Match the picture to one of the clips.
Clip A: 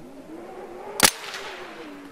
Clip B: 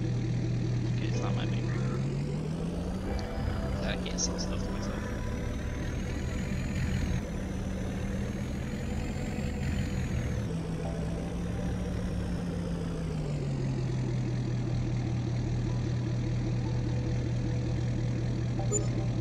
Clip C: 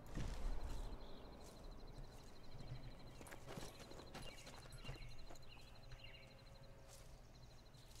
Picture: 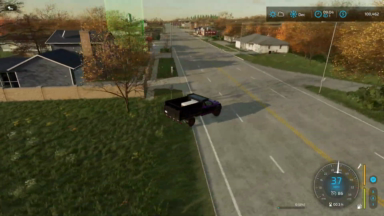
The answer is B